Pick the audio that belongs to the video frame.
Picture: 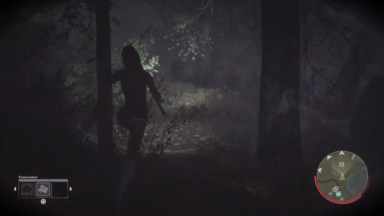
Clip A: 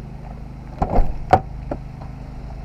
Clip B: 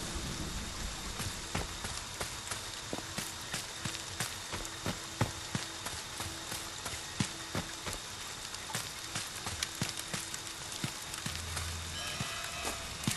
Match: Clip B